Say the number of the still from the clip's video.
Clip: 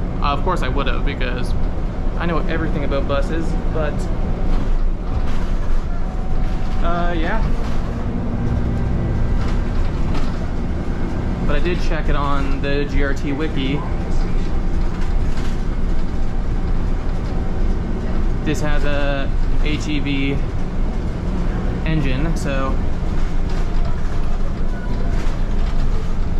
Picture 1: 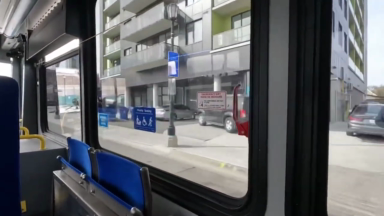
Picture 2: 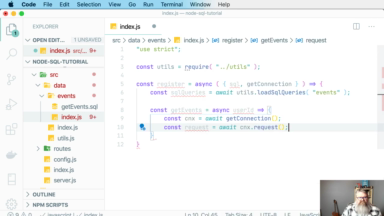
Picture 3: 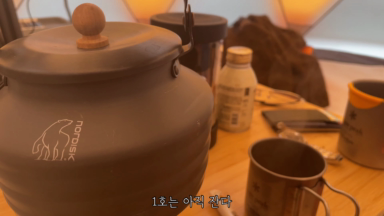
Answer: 1